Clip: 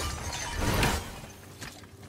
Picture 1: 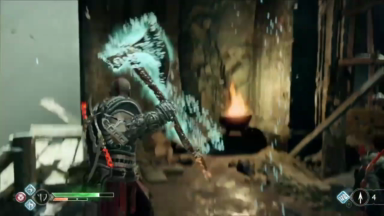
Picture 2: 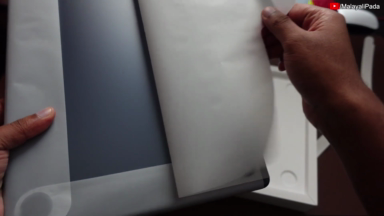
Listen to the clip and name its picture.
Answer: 1